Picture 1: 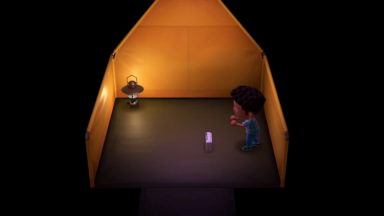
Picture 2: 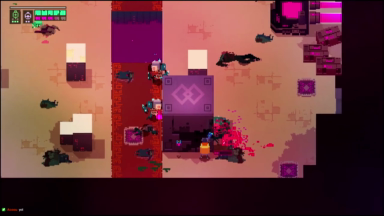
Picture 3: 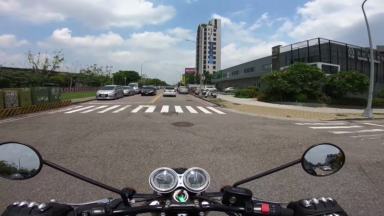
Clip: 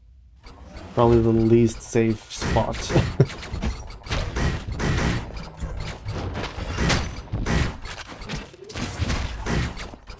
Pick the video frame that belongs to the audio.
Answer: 2